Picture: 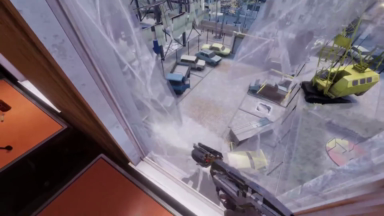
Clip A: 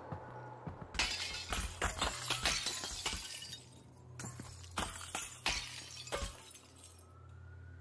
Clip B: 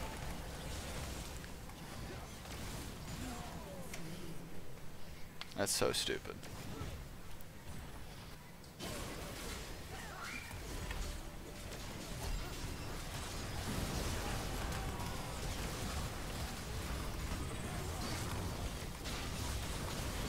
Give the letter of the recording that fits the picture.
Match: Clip A